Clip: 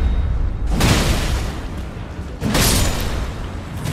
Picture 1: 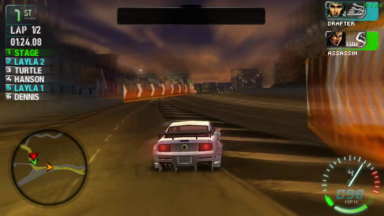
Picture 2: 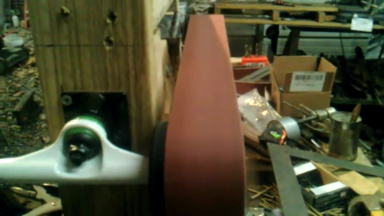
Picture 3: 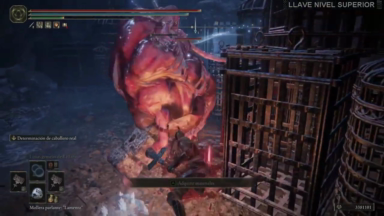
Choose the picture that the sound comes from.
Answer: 3